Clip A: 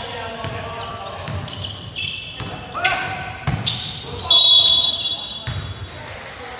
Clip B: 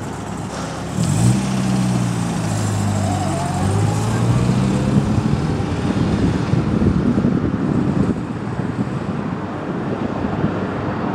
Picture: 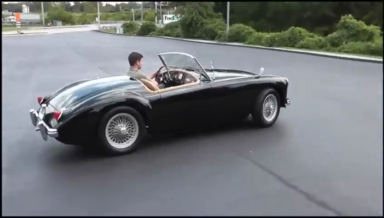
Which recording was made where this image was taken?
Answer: B